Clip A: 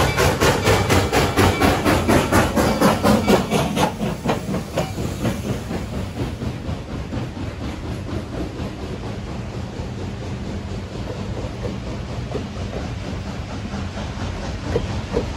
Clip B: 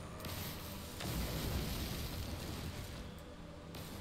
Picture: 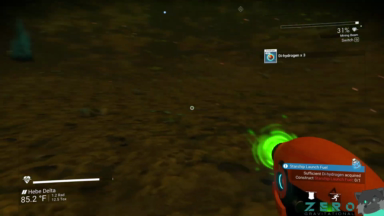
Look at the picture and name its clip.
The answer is B